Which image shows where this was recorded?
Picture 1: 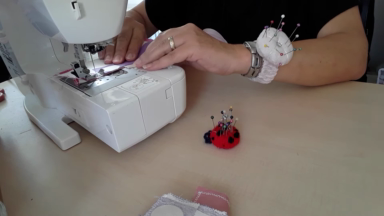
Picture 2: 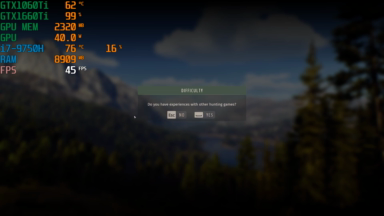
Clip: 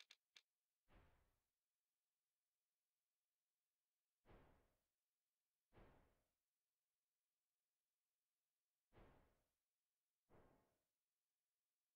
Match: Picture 2